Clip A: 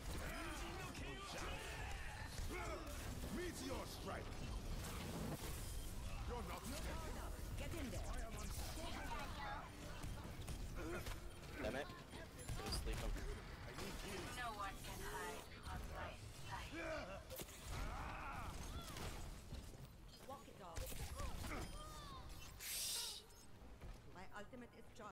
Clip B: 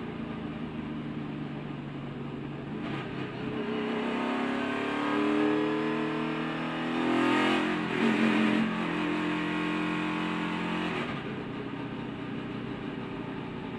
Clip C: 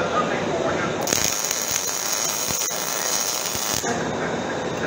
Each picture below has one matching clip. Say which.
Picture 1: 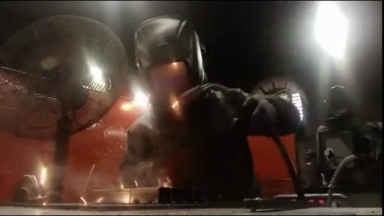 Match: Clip C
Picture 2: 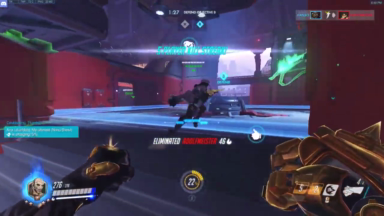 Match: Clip A